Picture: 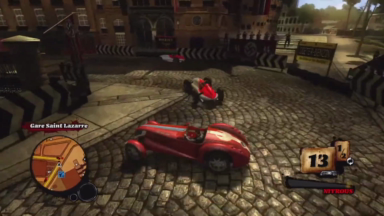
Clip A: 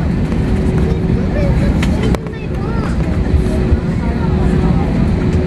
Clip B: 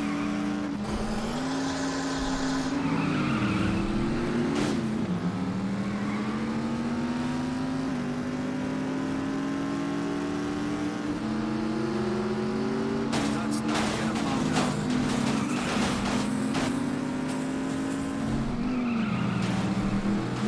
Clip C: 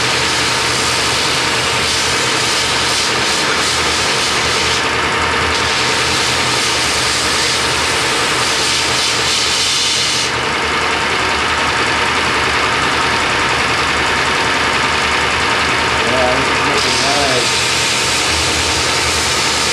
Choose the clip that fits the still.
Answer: B